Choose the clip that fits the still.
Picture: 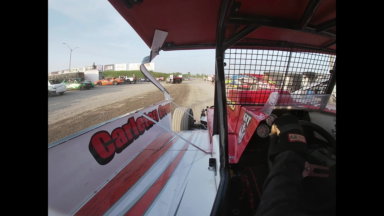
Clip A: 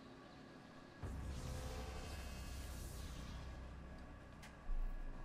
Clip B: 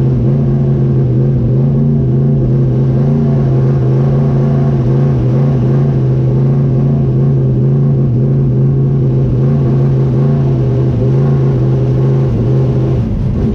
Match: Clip B